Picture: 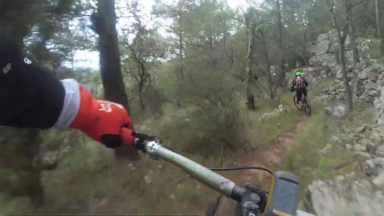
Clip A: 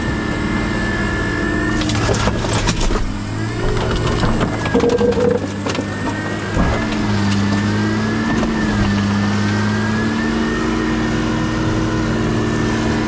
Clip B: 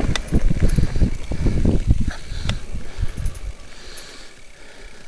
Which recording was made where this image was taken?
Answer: B